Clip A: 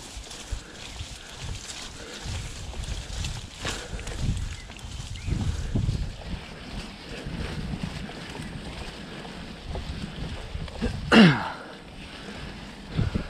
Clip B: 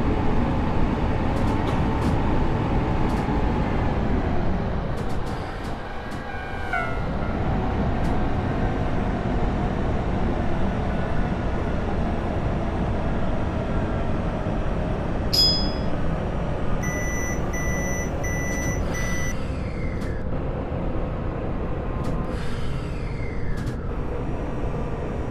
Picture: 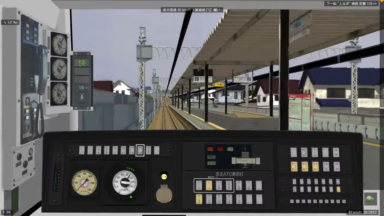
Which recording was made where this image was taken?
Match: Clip B